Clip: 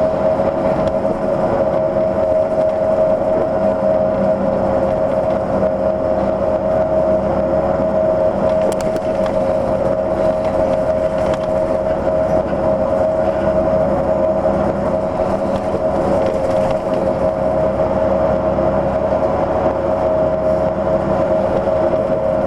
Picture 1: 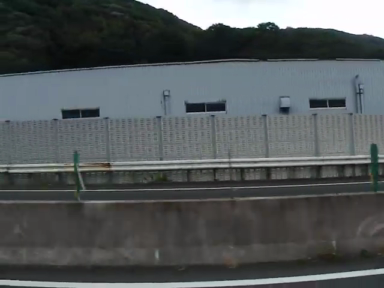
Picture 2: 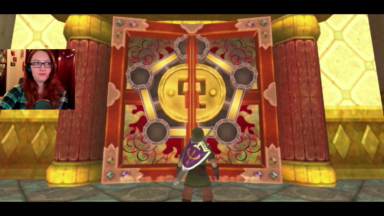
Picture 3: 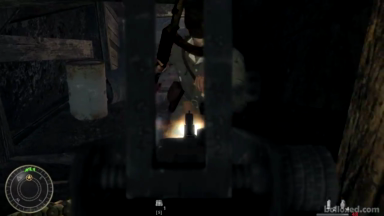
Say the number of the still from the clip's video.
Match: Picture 1